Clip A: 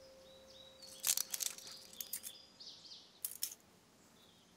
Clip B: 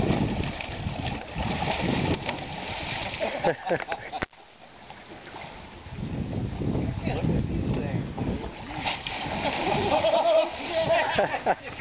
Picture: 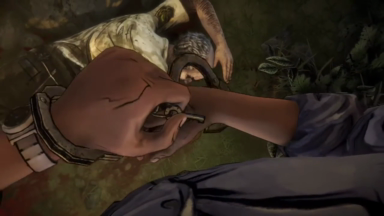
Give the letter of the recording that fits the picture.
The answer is A